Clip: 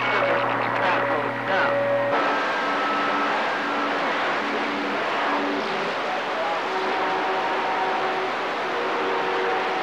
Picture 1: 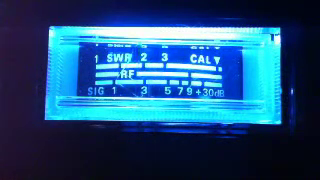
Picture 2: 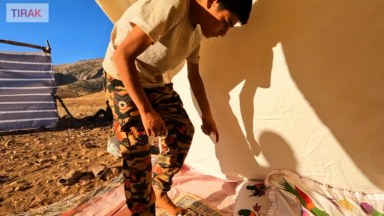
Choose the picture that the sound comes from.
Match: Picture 1